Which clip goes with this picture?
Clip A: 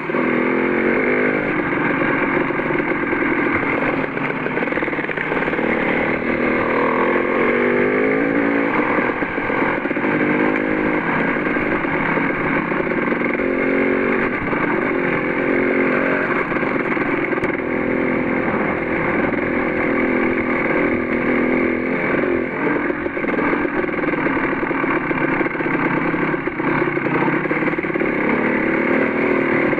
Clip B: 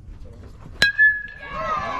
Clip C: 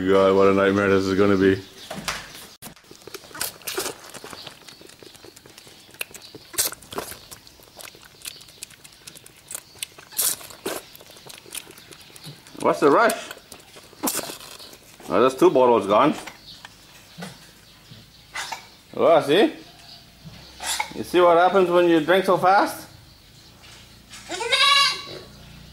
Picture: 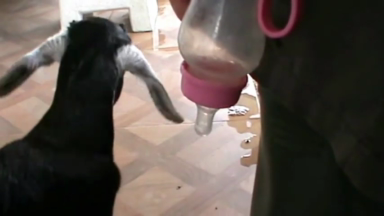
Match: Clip C